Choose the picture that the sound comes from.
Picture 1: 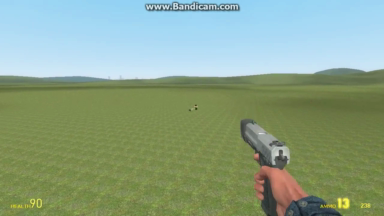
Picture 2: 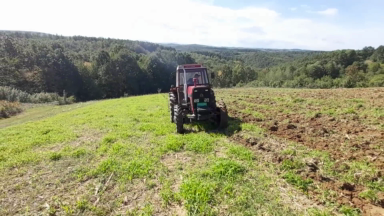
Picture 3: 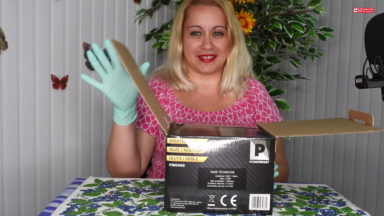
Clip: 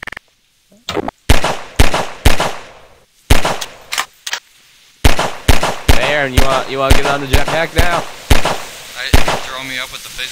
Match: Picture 1